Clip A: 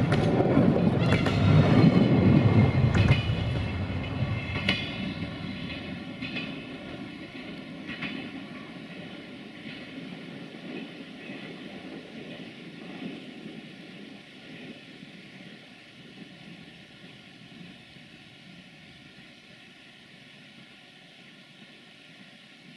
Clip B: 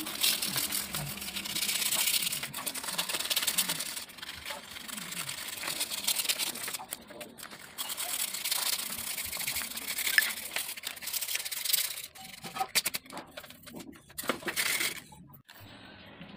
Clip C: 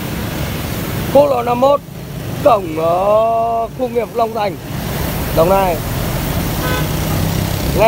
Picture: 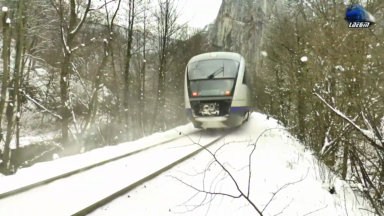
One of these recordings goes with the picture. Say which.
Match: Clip A